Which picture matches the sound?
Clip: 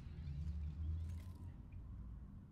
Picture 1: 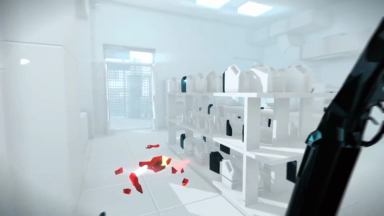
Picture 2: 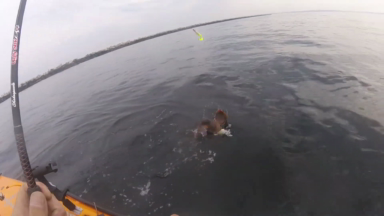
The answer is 1